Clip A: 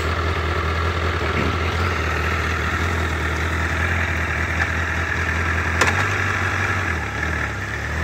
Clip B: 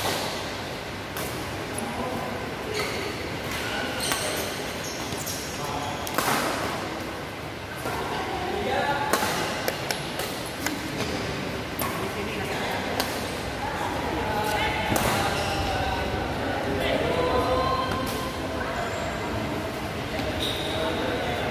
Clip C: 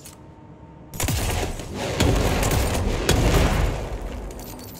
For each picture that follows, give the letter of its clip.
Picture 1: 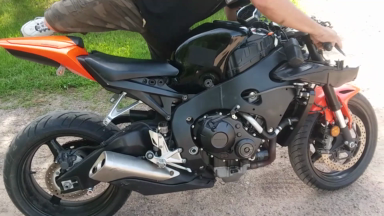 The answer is A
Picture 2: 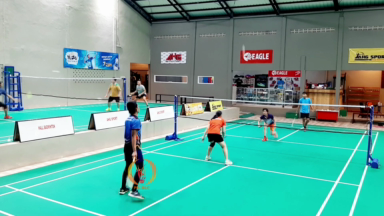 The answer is B